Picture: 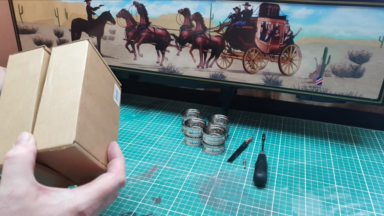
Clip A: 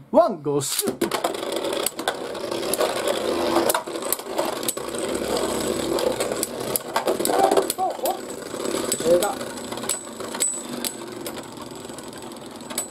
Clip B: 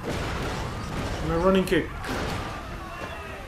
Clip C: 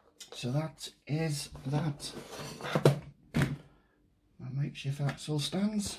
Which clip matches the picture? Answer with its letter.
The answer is C